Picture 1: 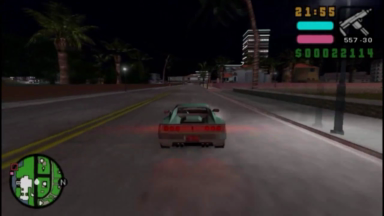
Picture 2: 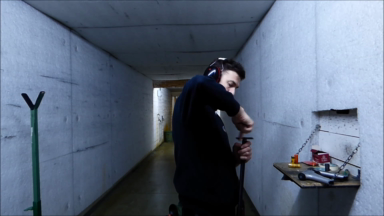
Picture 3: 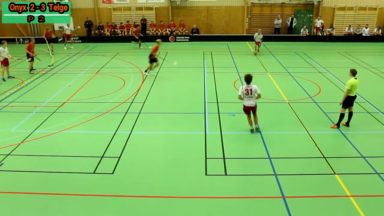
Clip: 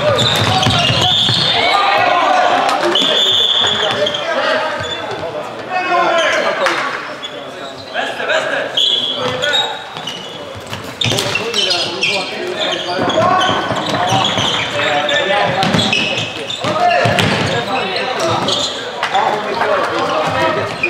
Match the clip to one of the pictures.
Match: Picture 3